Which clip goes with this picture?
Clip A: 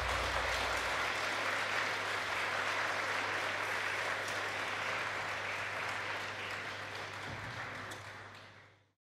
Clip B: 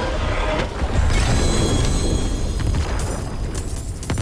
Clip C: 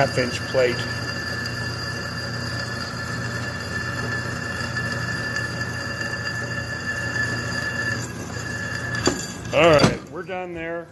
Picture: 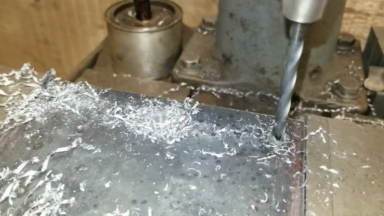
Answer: C